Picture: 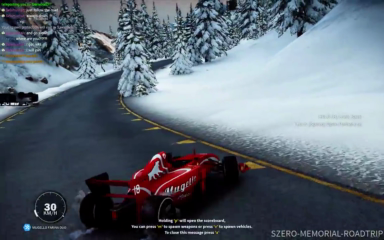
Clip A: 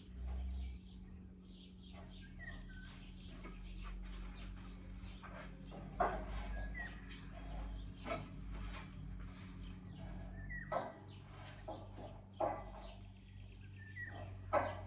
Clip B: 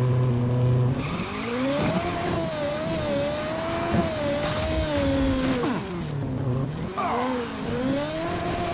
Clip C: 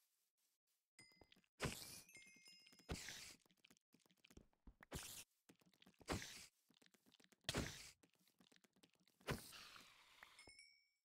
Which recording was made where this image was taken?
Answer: B